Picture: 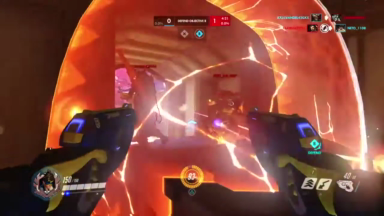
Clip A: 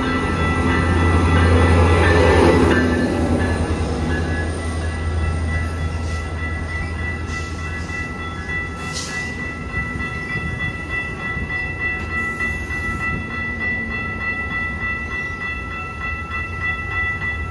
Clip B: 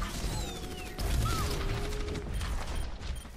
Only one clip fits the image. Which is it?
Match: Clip B